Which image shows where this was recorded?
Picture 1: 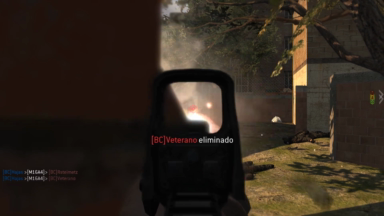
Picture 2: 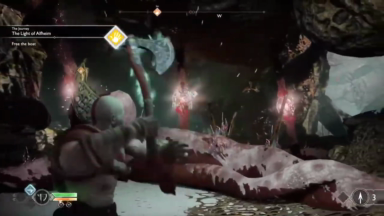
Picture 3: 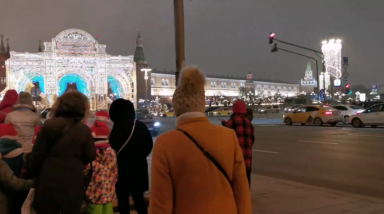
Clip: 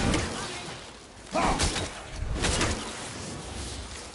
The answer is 2